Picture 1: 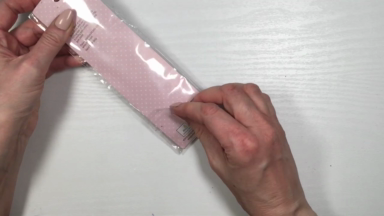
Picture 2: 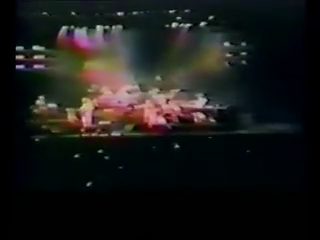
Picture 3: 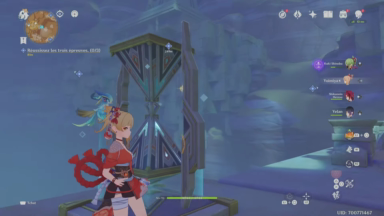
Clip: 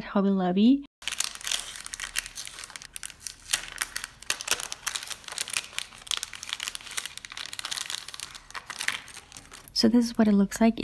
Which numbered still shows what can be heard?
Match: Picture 1